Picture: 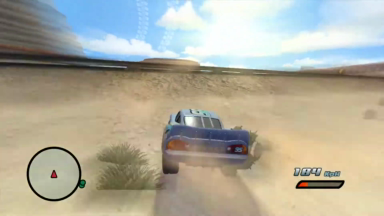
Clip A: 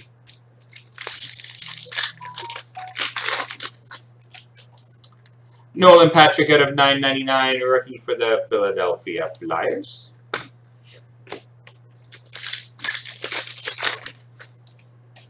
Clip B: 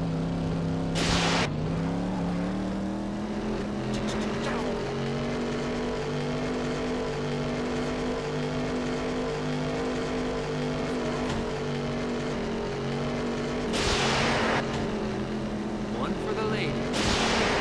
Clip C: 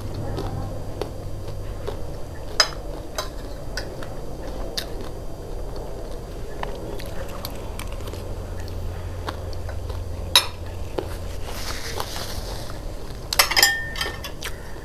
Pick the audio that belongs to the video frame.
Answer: B